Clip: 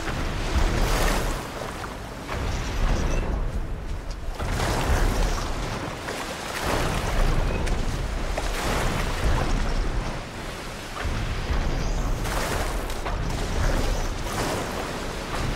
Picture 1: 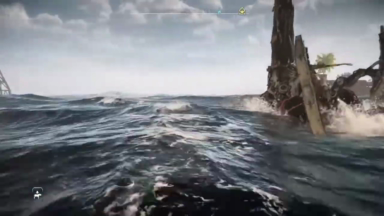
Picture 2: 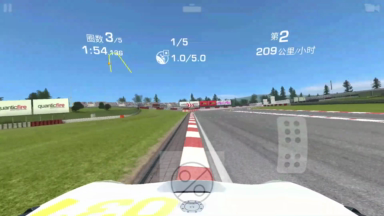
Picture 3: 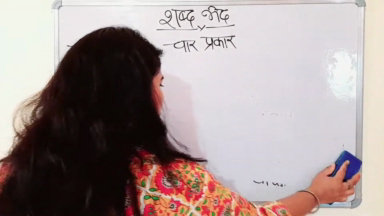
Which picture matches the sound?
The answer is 1